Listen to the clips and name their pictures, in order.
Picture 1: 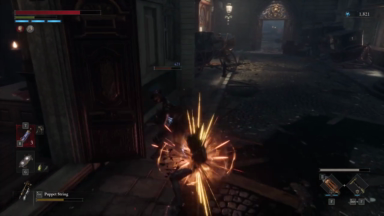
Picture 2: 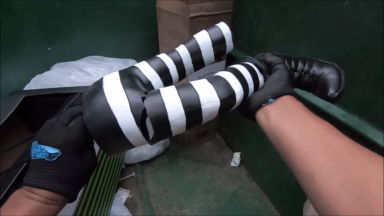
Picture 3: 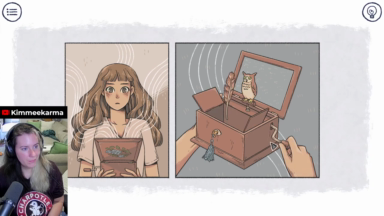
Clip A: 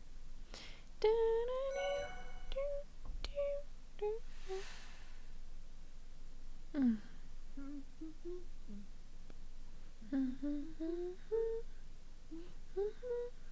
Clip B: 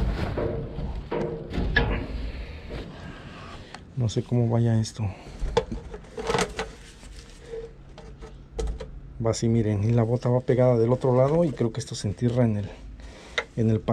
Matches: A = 3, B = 2